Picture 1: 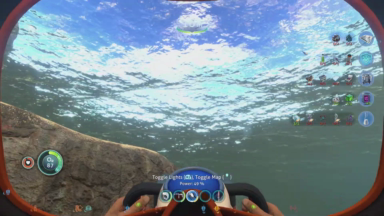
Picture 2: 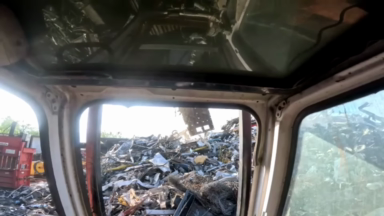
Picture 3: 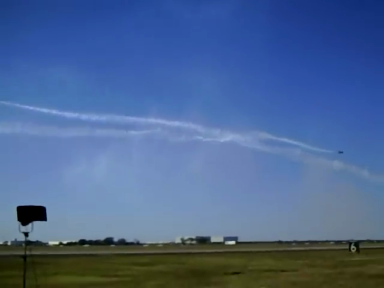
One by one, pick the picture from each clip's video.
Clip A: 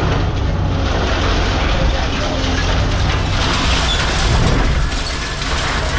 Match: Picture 2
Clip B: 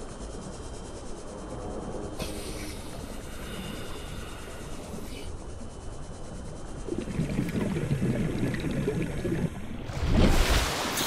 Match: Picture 1